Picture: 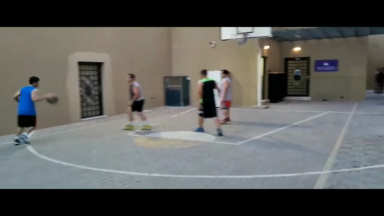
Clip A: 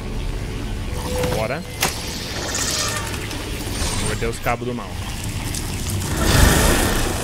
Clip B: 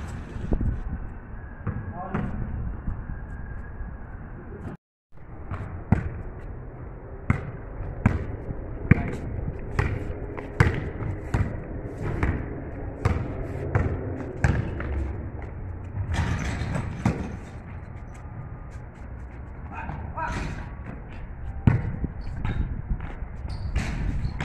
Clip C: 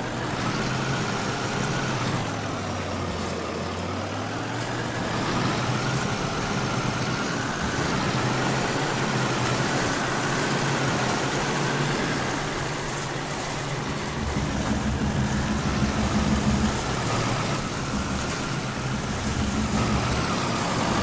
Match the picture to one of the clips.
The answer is B